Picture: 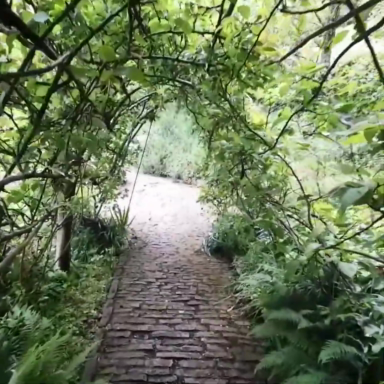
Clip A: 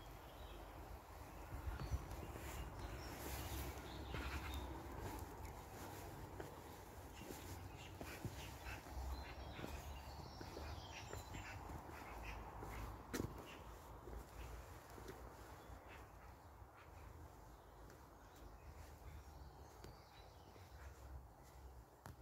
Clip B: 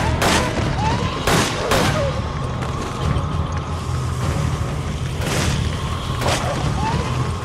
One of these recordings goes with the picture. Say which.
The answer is A